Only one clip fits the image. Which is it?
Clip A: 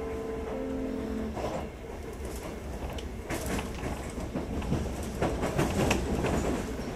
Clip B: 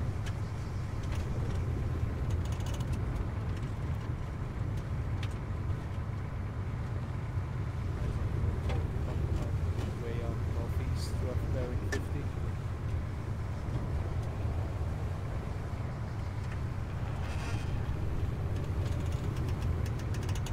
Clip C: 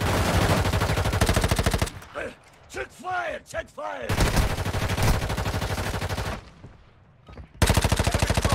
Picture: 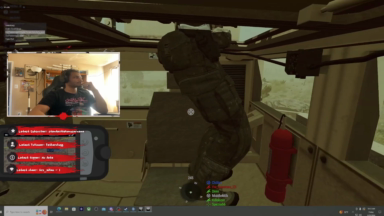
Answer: B